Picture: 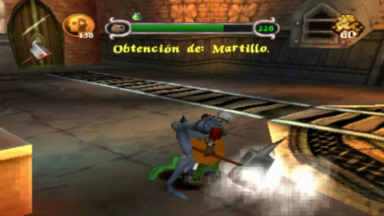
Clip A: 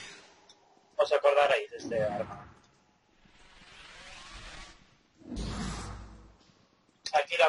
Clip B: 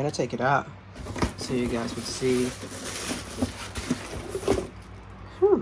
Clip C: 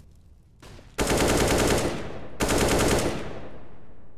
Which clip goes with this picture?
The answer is A